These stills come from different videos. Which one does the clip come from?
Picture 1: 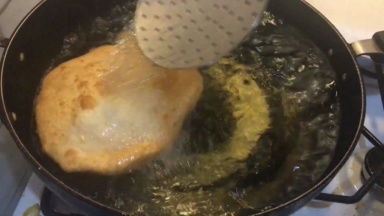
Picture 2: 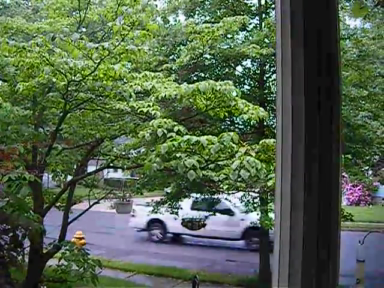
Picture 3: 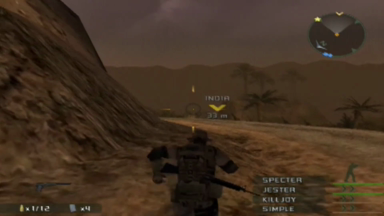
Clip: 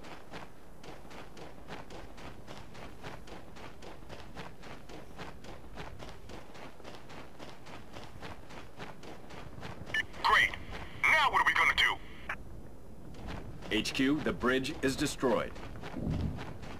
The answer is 3